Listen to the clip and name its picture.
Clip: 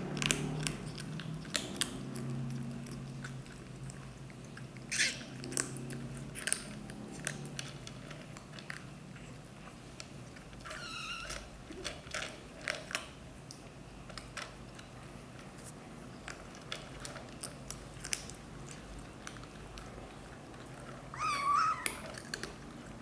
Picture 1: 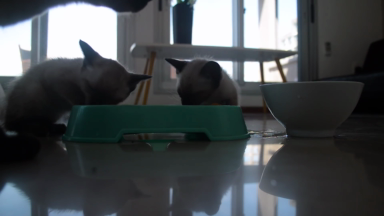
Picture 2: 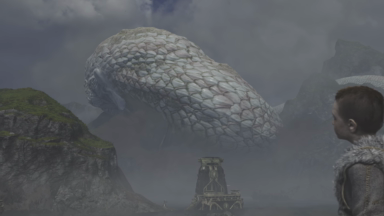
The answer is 1